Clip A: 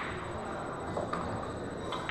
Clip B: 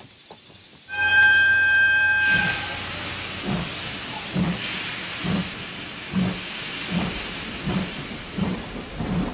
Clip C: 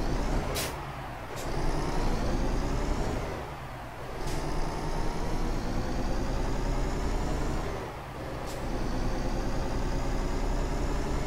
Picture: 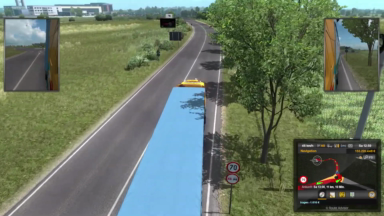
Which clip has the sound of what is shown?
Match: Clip C